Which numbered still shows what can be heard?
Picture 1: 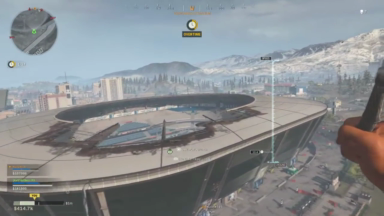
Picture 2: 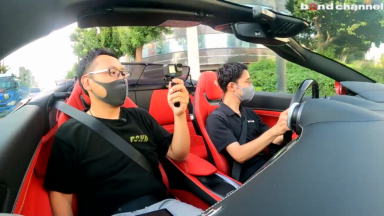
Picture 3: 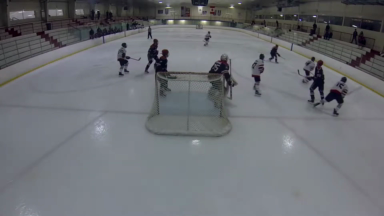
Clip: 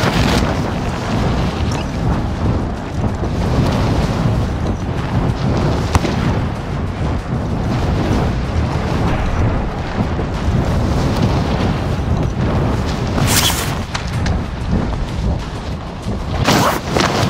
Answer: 1